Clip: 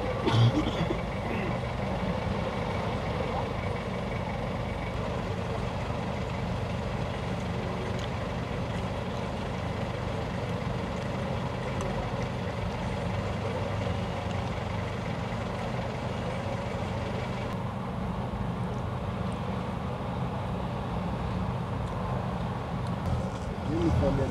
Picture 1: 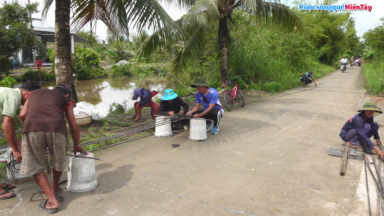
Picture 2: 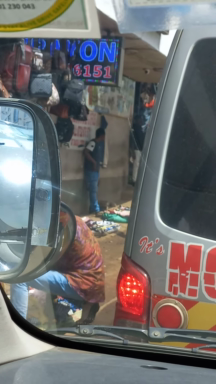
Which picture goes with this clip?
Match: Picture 2